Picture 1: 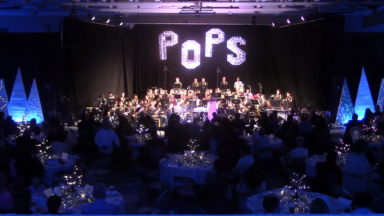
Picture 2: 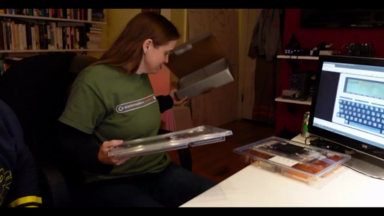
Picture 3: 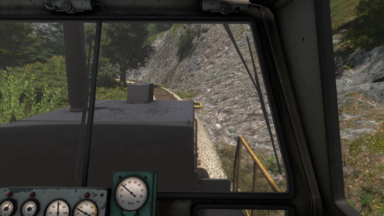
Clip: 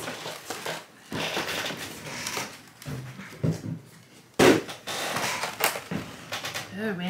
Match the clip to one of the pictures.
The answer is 2